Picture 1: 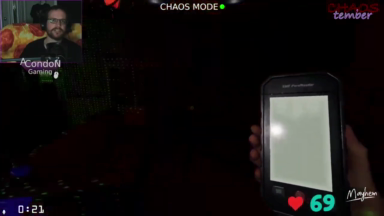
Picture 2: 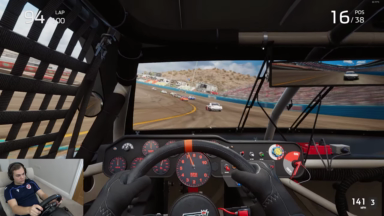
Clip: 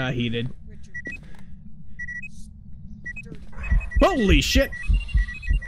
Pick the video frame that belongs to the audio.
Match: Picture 1